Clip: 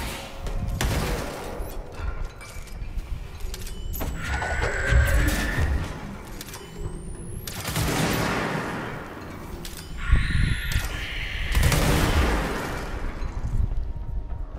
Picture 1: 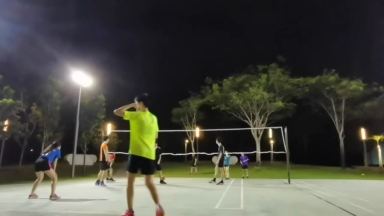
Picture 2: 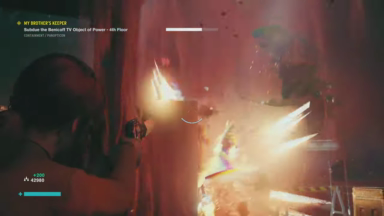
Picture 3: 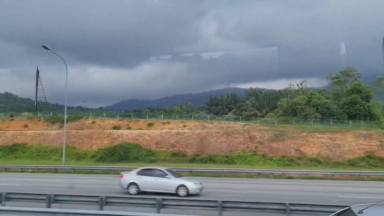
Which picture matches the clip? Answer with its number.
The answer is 2